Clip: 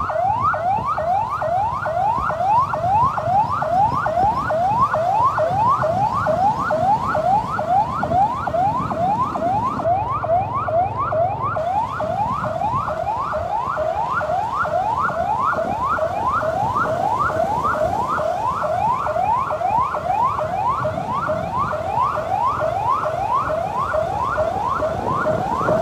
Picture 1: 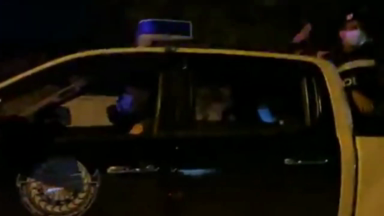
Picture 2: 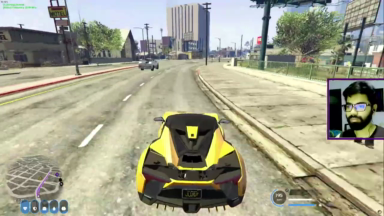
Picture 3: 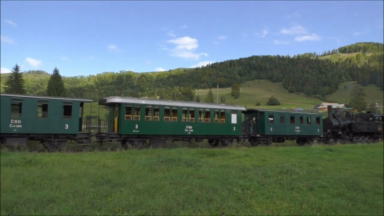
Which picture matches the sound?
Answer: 1